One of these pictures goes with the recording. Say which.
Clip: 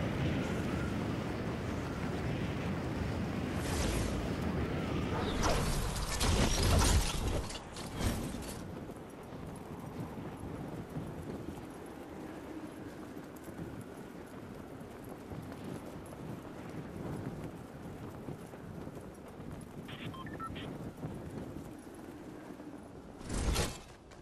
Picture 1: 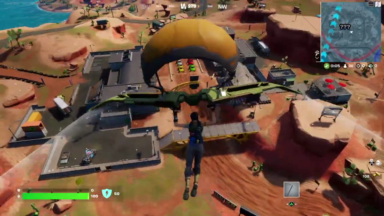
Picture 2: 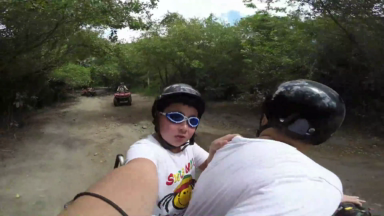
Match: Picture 1